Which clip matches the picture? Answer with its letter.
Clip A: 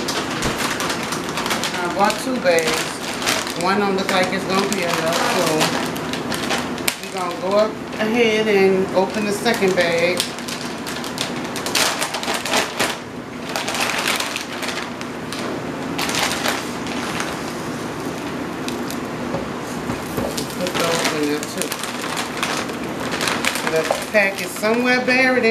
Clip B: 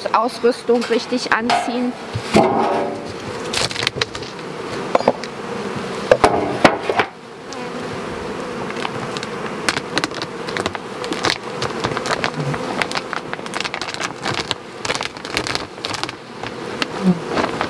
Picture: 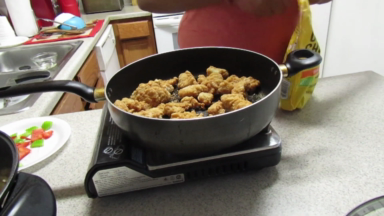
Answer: A